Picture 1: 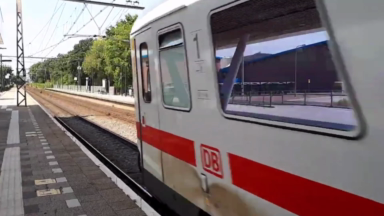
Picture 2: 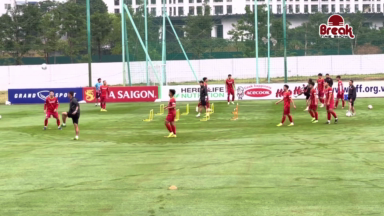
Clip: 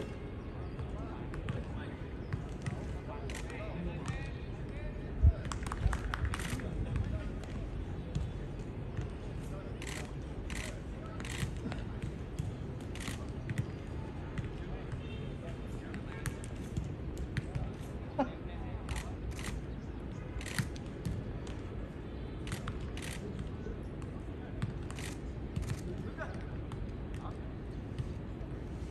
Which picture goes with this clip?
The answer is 2